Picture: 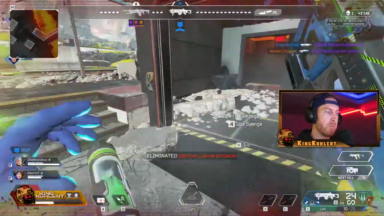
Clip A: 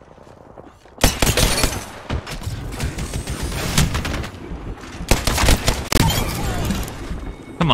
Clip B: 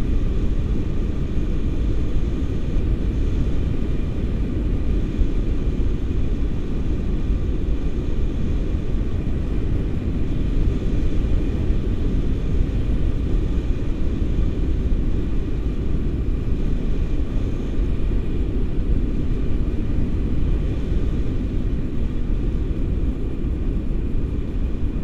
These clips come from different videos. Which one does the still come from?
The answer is A